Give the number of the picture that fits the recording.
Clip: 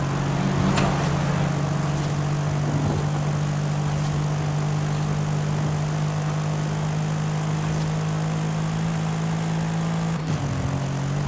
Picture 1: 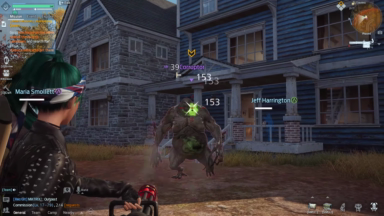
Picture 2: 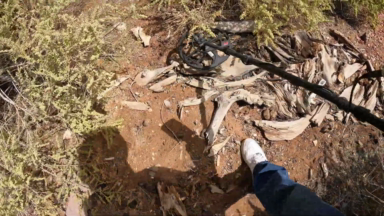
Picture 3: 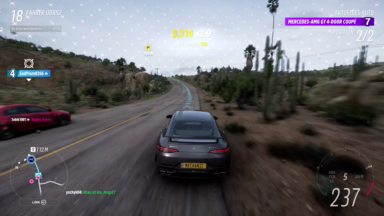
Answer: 3